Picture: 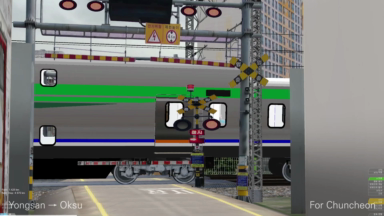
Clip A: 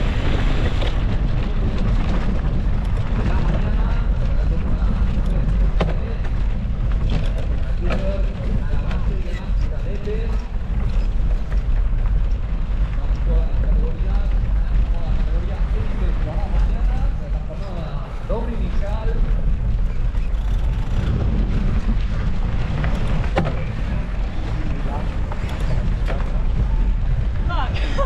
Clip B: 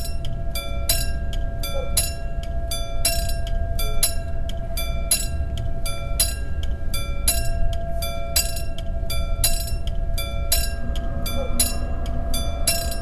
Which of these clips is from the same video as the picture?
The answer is B